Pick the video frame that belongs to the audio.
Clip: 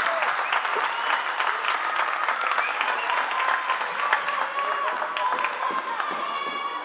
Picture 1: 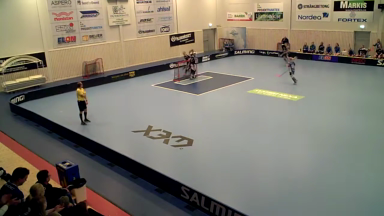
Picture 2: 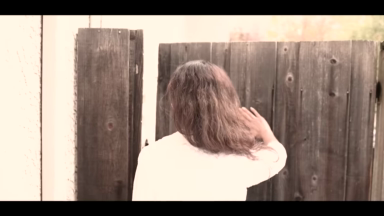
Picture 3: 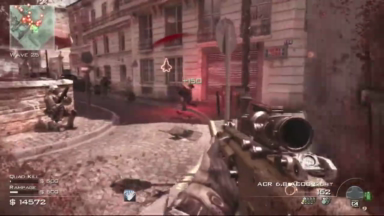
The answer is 1